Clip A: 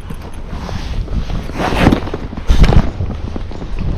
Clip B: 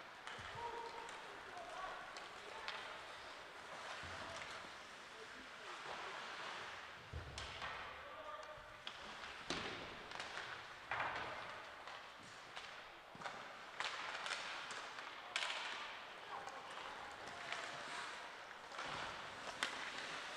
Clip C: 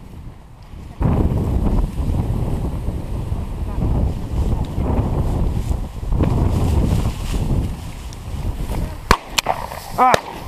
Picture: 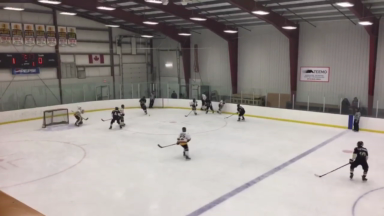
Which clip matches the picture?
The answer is B